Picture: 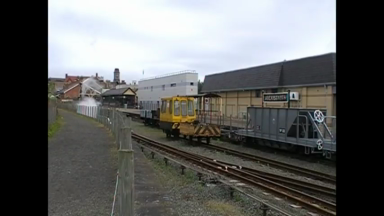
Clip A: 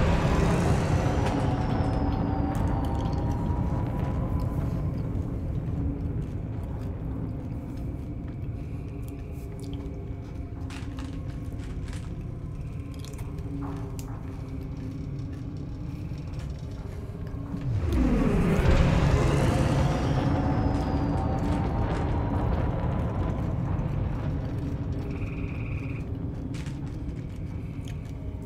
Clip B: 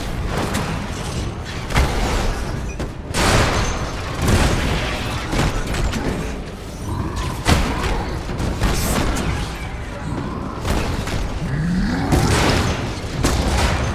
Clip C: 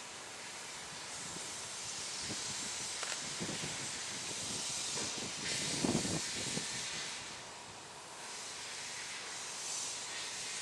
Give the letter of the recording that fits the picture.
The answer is C